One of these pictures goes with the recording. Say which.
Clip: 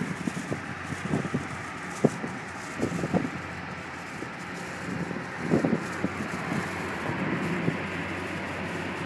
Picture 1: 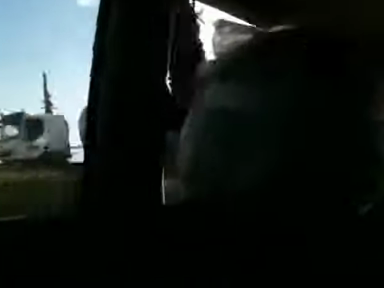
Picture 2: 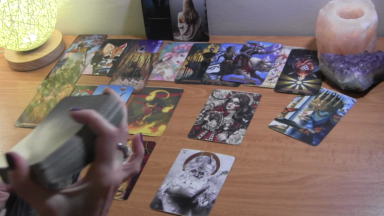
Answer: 1